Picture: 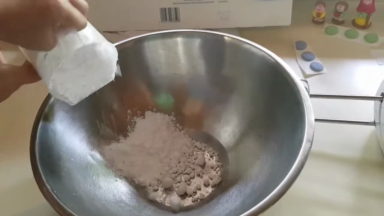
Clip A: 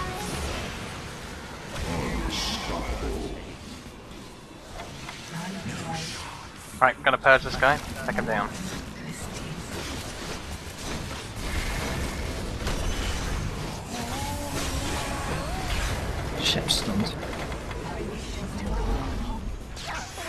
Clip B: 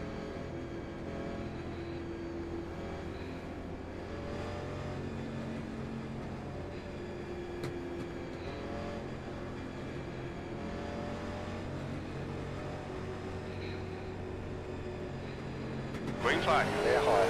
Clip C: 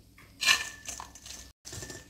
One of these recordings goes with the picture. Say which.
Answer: C